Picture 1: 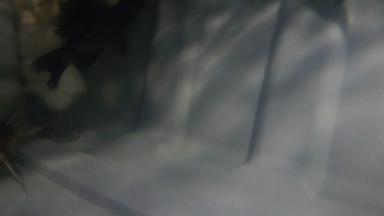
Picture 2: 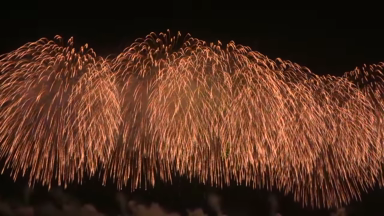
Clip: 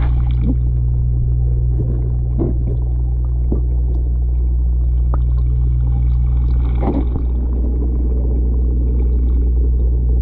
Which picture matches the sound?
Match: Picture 1